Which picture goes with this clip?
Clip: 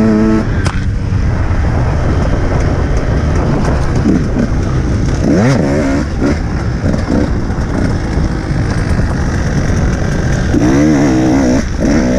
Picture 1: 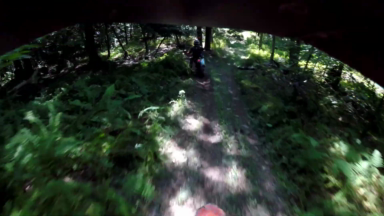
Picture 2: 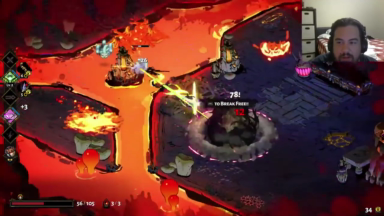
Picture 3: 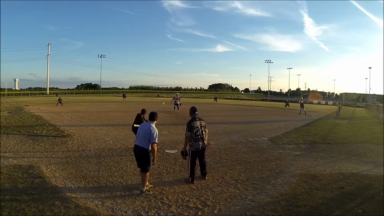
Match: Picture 1